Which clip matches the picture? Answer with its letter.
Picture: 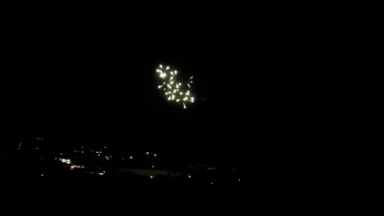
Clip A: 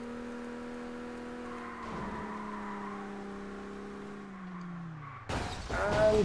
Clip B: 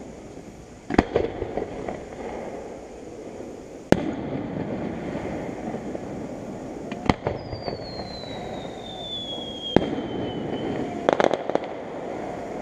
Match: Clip B